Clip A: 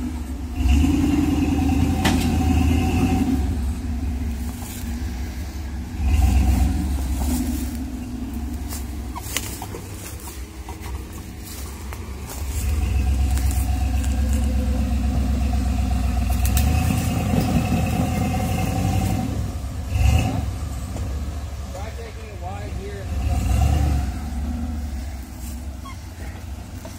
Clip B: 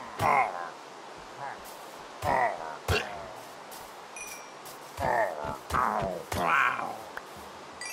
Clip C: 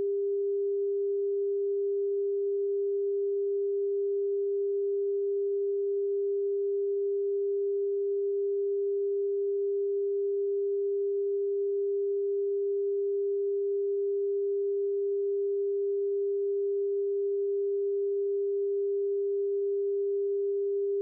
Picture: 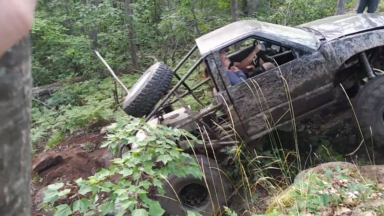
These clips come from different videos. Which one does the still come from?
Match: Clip A